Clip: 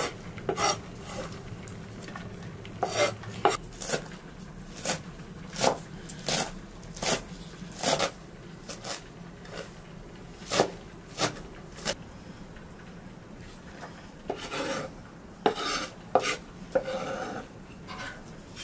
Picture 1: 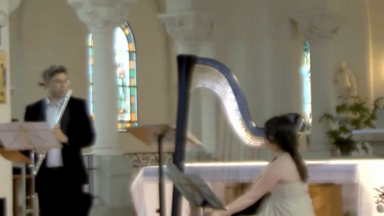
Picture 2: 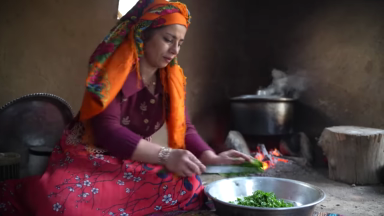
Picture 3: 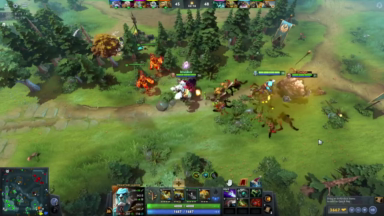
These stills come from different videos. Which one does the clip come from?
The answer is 2